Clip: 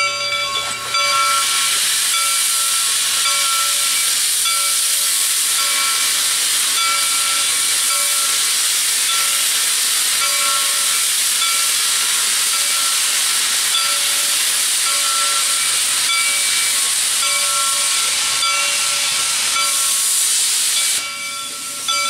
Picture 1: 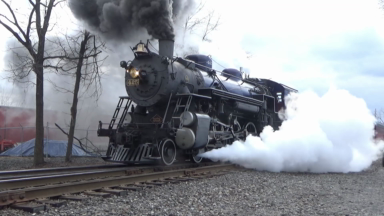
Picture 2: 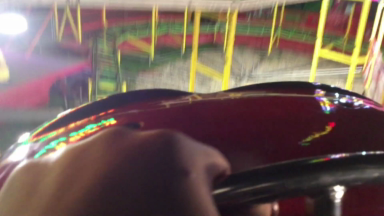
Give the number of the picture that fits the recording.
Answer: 1